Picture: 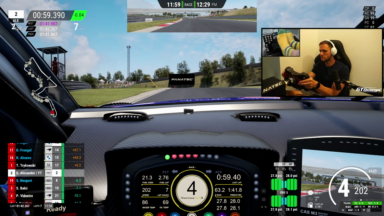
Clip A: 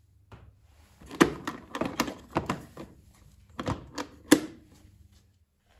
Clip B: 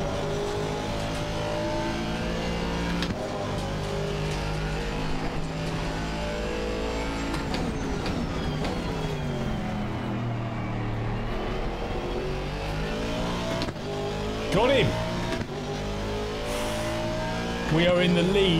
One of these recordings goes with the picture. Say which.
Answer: B